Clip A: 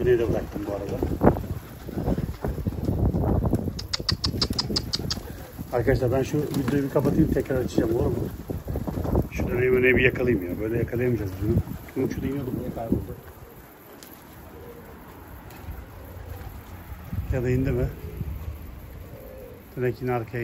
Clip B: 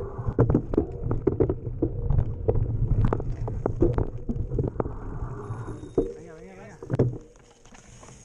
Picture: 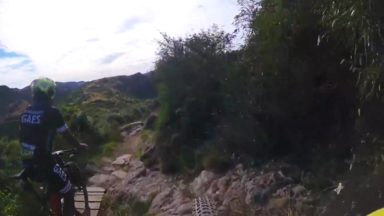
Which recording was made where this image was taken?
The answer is B